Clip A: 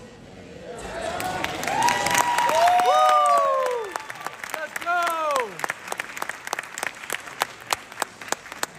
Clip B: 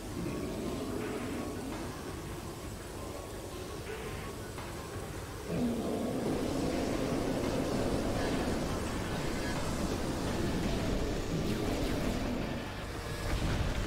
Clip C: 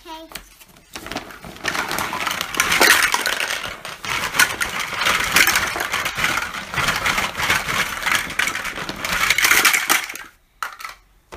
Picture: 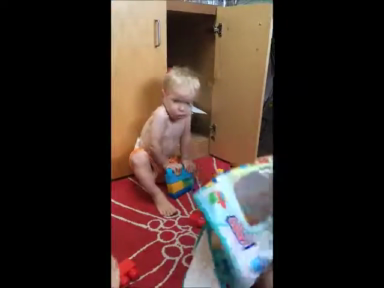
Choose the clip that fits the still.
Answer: C